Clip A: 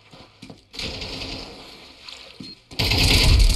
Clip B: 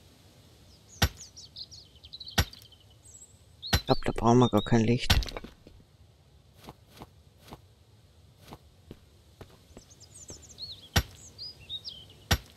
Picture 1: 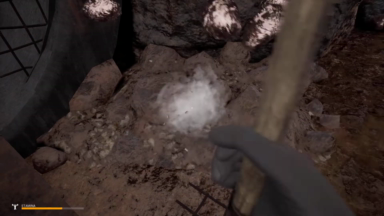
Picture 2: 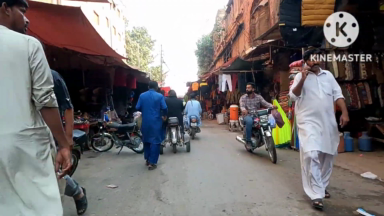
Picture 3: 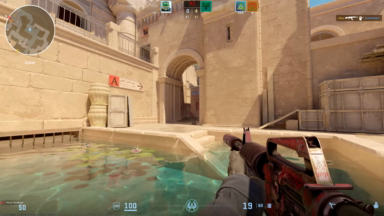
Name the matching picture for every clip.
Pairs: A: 3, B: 1